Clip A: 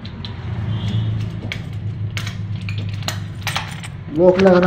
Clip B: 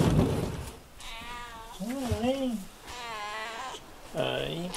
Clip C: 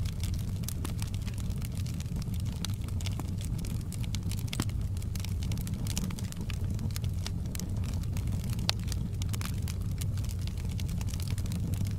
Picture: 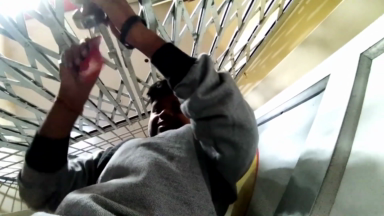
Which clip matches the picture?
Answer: A